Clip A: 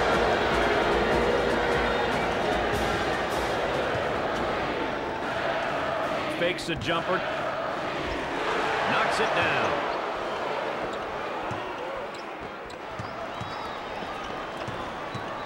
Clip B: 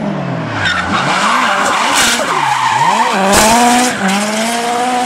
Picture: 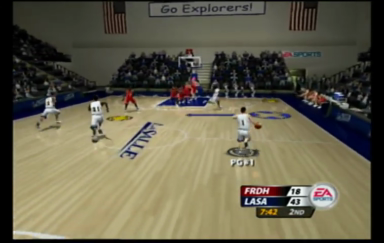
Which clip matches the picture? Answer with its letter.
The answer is A